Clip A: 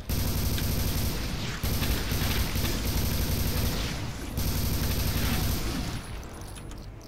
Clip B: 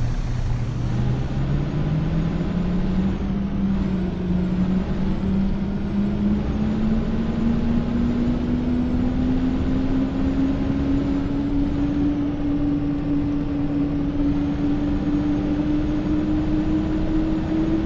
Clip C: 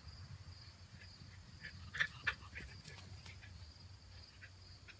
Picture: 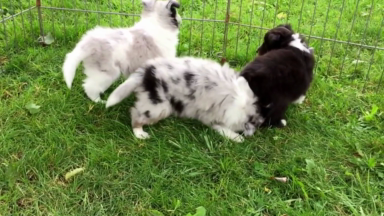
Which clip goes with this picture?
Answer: C